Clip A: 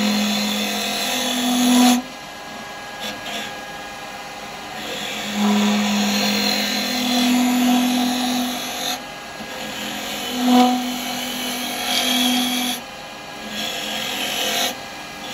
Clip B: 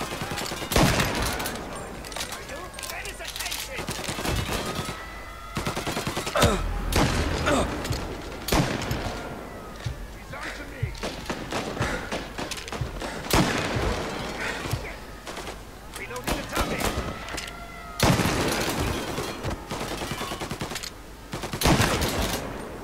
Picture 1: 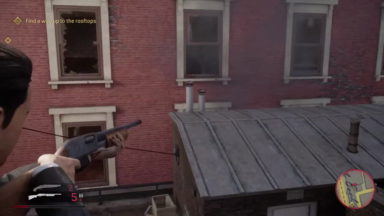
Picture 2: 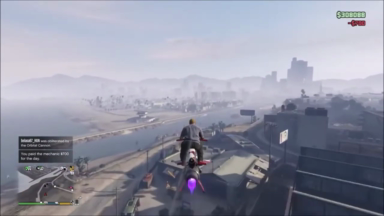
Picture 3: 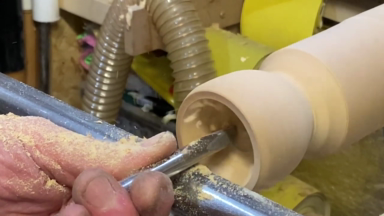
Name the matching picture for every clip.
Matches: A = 3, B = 1